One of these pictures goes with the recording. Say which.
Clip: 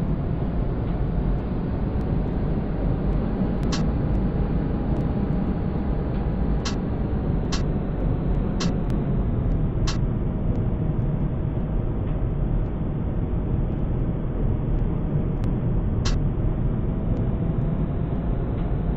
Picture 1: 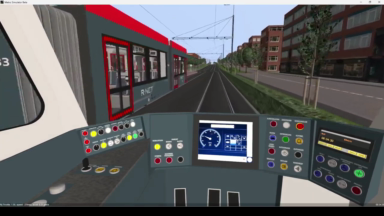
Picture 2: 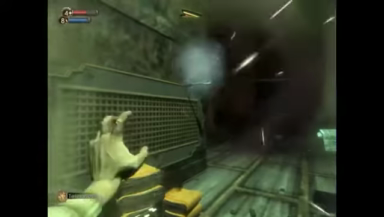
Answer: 1